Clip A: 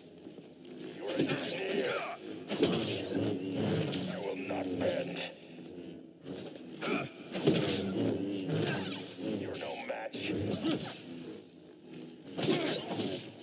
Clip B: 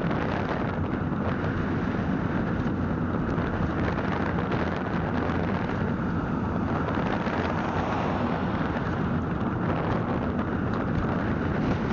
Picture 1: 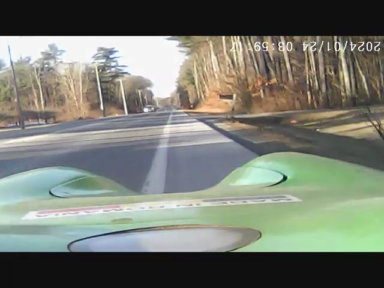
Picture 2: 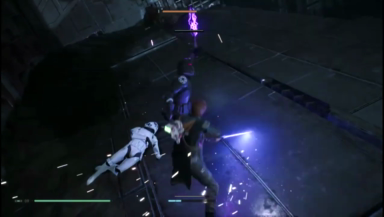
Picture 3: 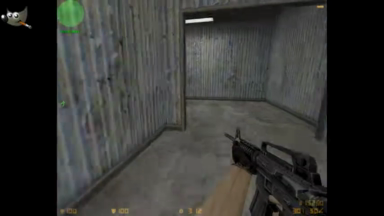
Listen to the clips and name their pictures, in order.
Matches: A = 2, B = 1